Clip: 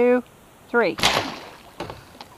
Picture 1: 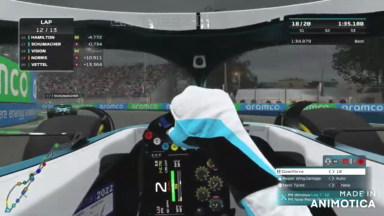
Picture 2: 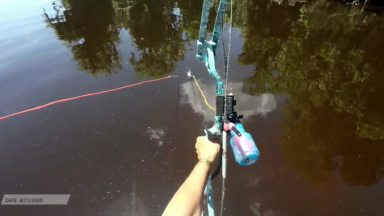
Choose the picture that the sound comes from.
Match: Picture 2